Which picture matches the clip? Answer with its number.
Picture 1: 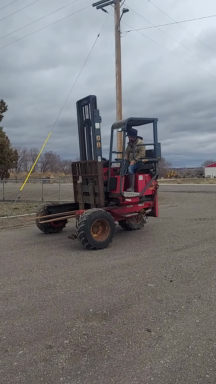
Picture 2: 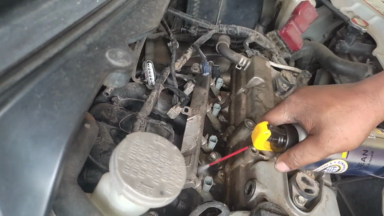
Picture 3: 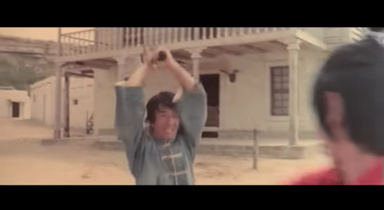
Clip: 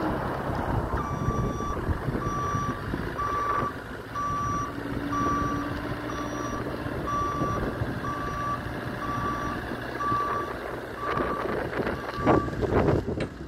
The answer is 1